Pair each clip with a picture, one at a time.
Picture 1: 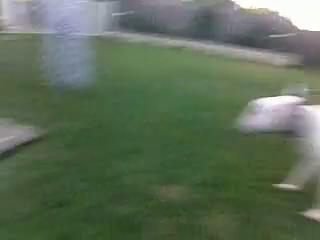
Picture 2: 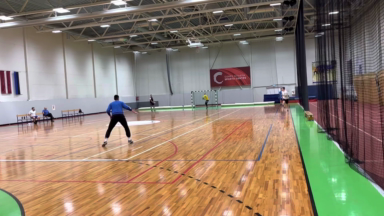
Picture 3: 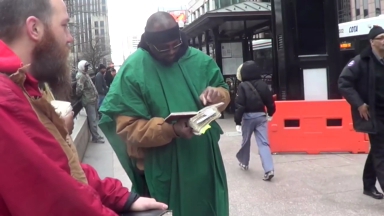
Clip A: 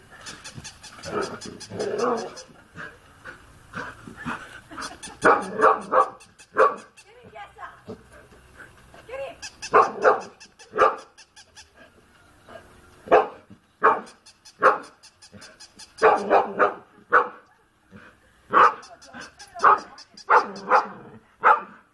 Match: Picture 1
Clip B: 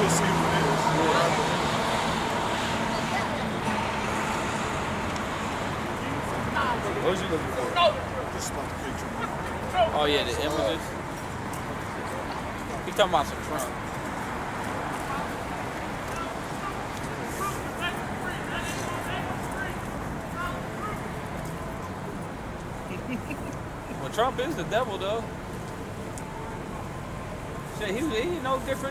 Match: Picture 3